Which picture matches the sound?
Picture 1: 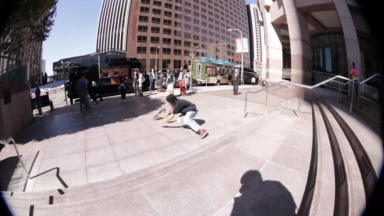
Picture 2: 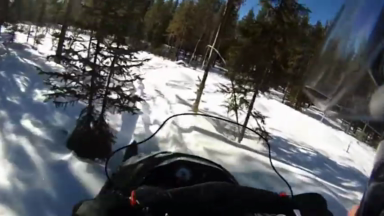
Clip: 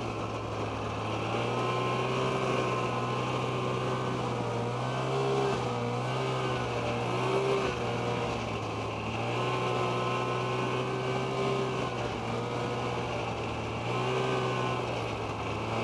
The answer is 2